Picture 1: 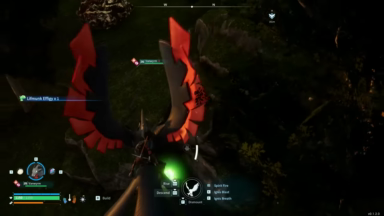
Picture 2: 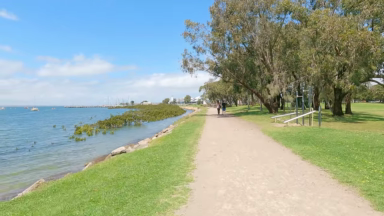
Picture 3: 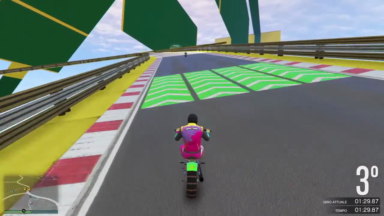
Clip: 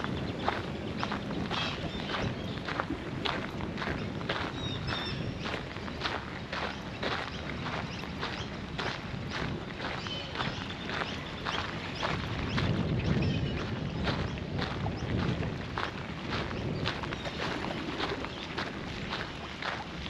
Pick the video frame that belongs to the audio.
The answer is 2